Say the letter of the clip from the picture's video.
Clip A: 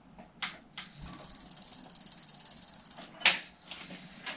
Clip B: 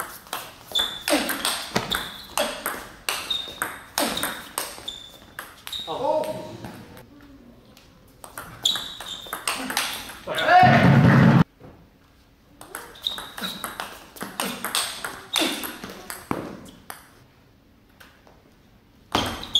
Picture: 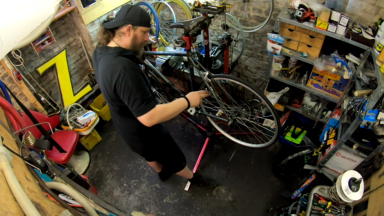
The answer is A